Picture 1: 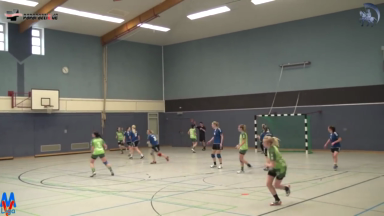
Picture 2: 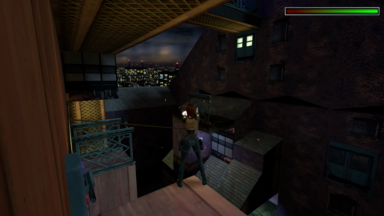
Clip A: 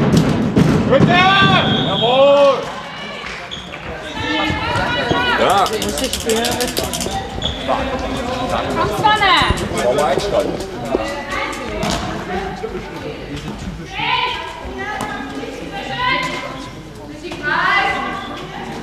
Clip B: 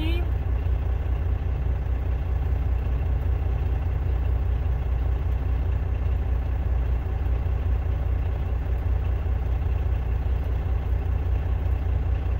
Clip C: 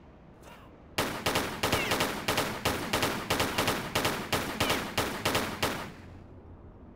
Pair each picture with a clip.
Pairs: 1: A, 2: C